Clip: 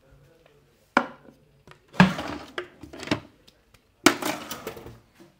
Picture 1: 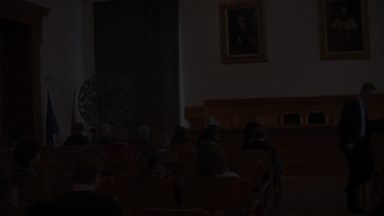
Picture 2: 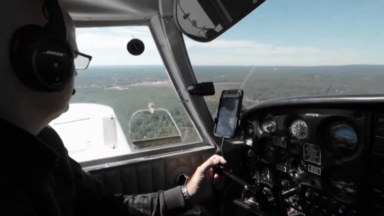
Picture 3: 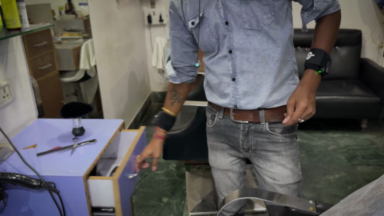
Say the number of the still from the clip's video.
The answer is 3